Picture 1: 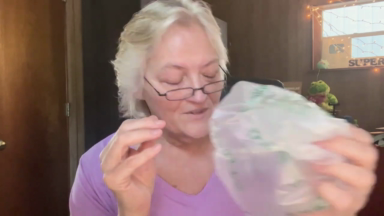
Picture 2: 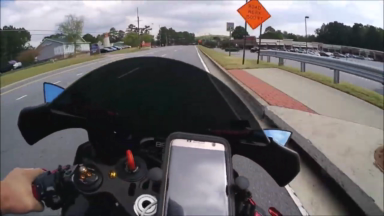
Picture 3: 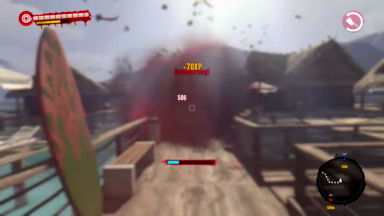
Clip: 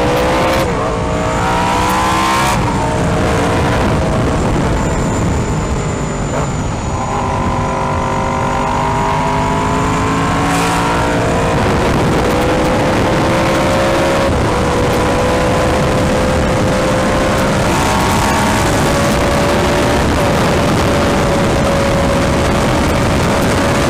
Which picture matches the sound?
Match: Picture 2